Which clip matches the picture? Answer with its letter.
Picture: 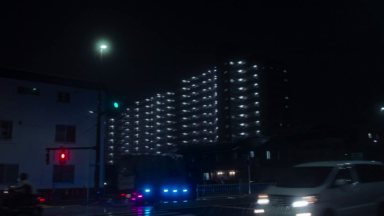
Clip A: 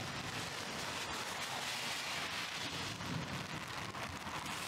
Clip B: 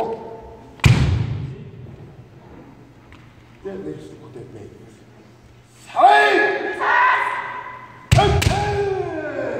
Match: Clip A